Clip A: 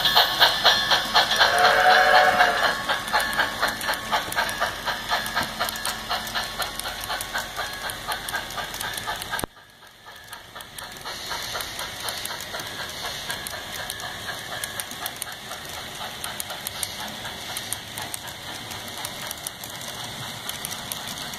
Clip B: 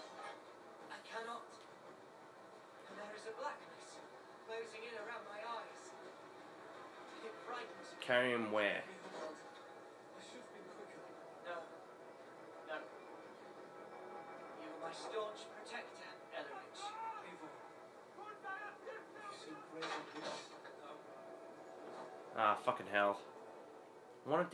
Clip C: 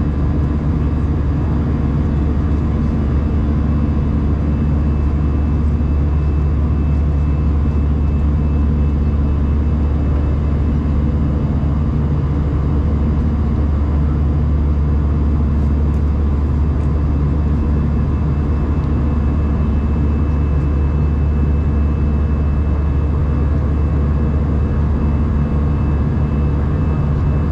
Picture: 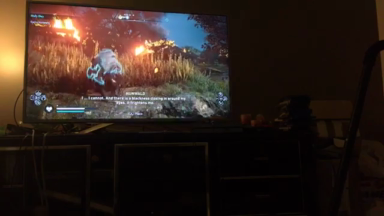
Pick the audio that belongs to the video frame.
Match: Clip B